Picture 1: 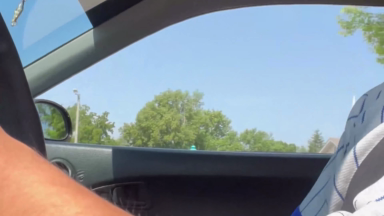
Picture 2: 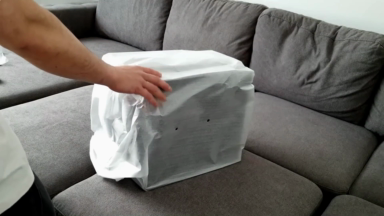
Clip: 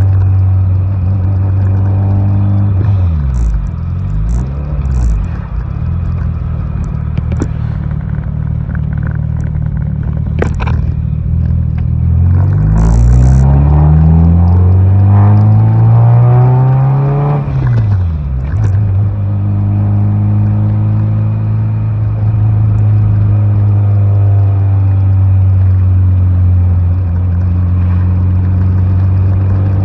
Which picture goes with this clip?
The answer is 1